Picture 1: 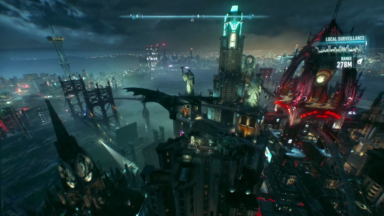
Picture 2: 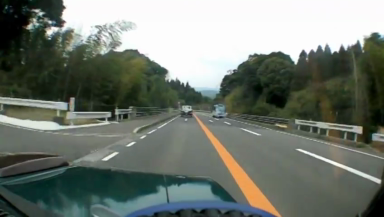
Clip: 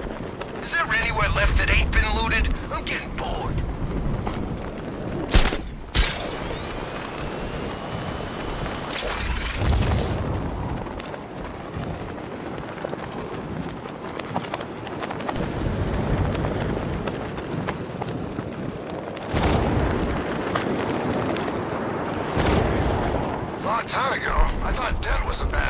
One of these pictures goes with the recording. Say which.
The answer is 1